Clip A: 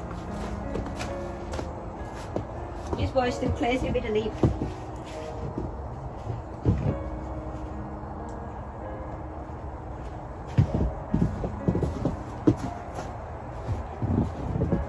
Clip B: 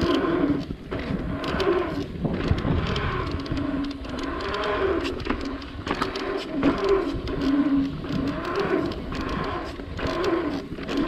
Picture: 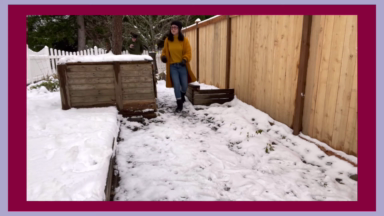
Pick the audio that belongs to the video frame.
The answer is A